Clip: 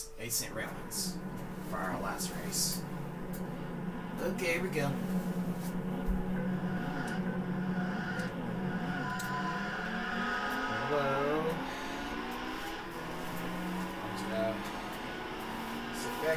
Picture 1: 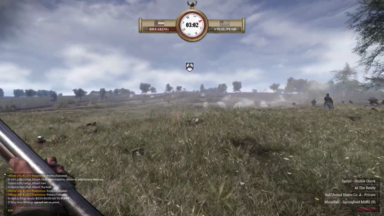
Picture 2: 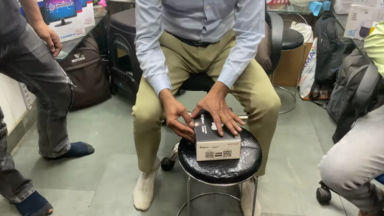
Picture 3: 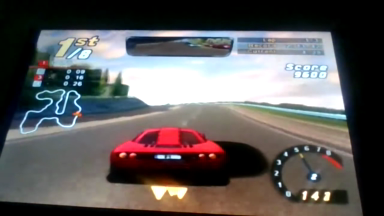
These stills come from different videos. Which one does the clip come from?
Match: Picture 3